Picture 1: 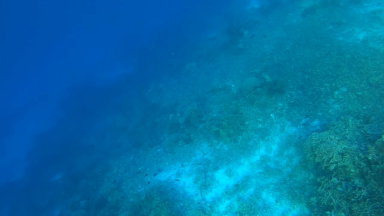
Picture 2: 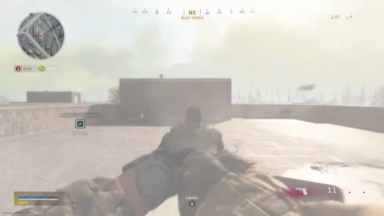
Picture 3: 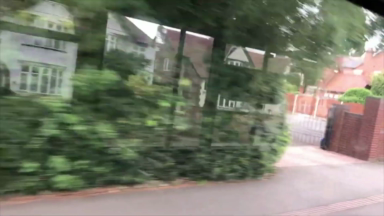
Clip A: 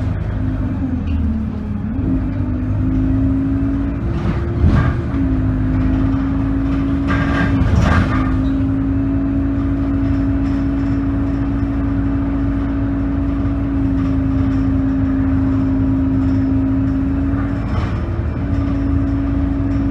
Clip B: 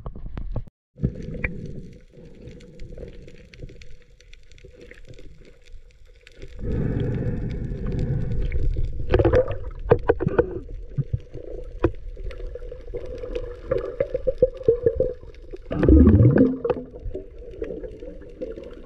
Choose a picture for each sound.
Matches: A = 3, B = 1